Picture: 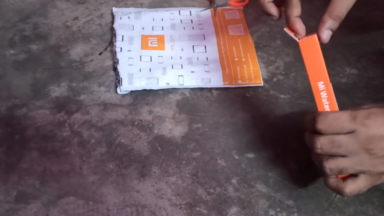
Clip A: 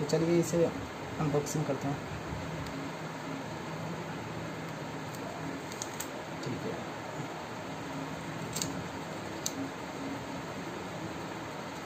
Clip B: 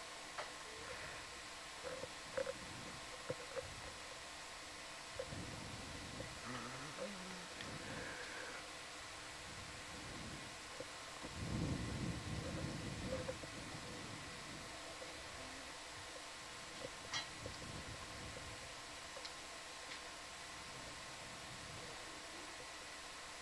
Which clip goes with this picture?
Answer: A